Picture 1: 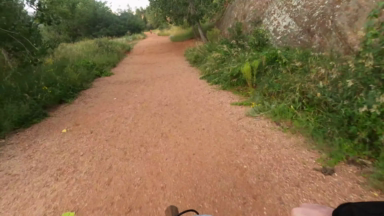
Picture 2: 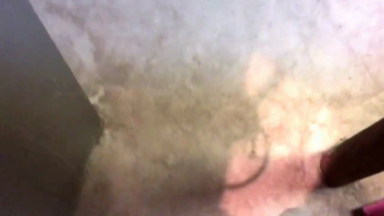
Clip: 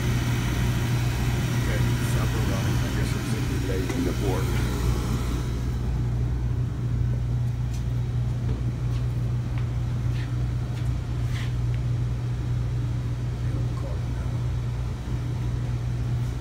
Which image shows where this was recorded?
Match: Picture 2